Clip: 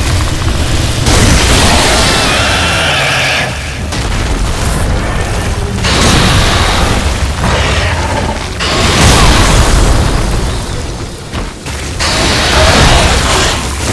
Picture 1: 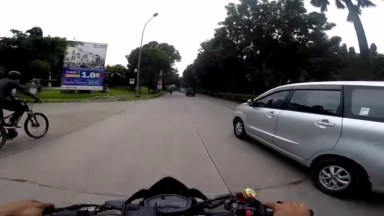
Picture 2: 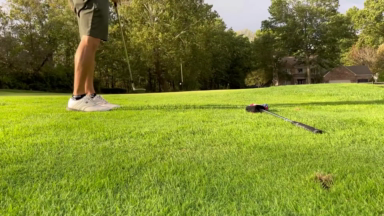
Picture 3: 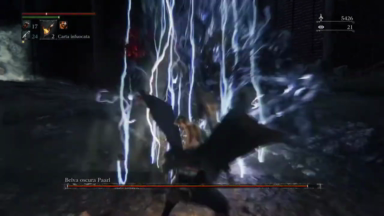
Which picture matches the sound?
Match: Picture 3